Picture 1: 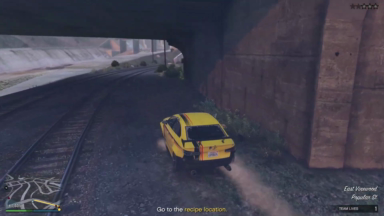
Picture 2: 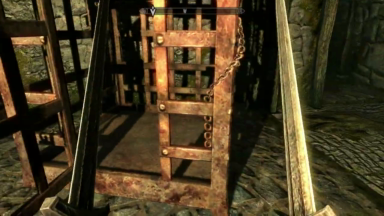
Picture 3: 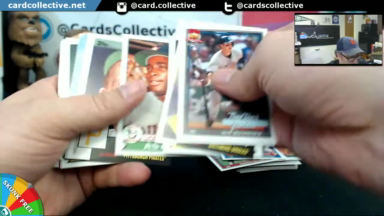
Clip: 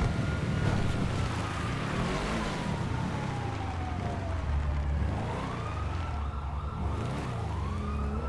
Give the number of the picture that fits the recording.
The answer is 1